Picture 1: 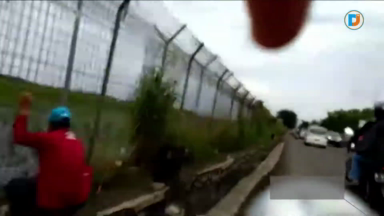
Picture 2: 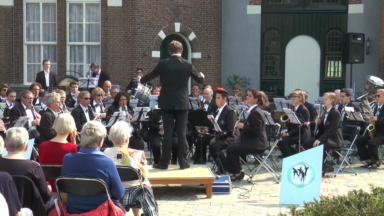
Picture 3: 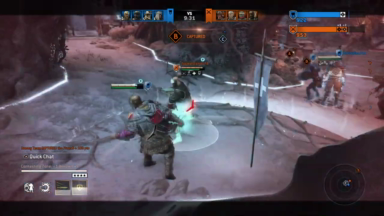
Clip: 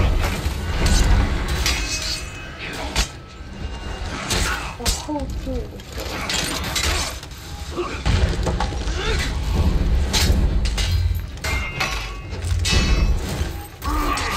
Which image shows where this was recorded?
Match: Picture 3